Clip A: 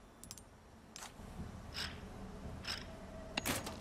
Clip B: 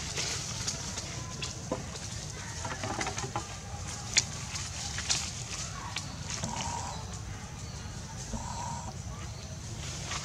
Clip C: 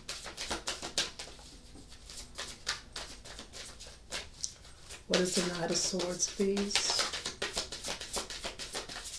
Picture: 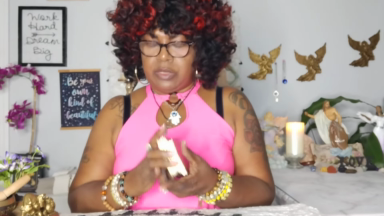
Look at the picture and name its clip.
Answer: C